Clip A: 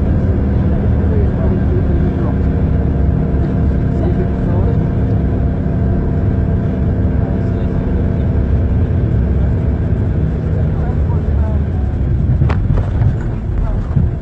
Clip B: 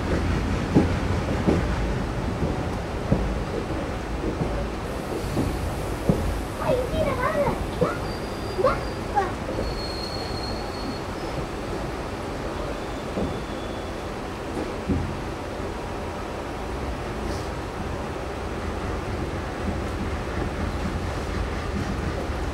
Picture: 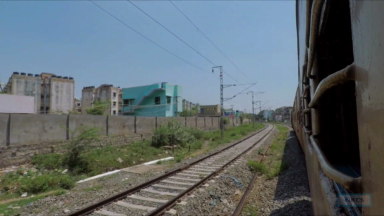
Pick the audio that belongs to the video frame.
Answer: B